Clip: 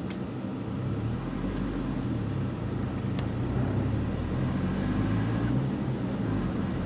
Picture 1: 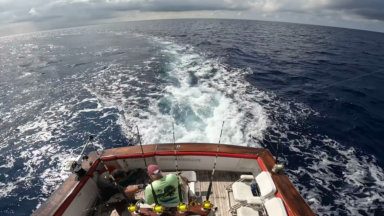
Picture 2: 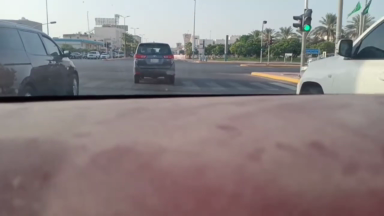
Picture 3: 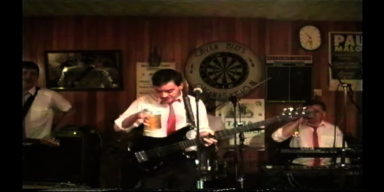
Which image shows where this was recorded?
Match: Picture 2